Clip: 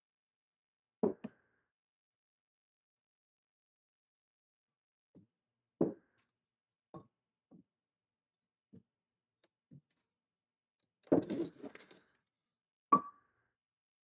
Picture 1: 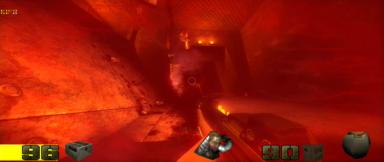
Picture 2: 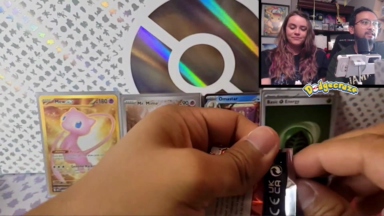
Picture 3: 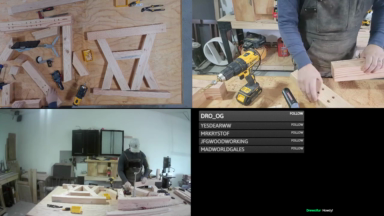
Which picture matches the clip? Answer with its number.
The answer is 3